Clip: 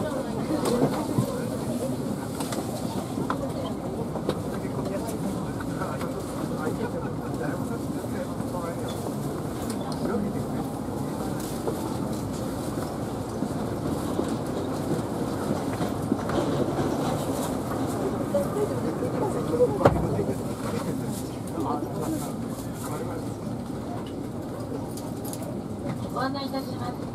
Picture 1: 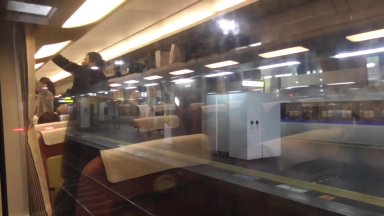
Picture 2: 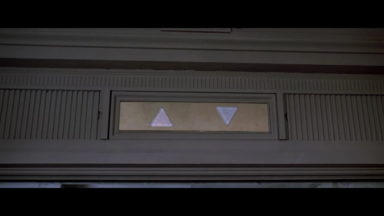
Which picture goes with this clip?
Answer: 1